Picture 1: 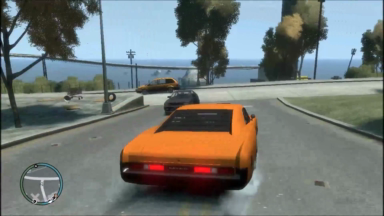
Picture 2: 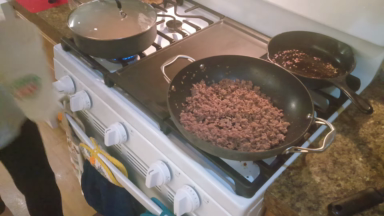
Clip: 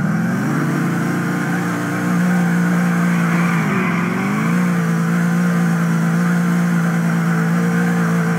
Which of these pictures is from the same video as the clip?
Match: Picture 1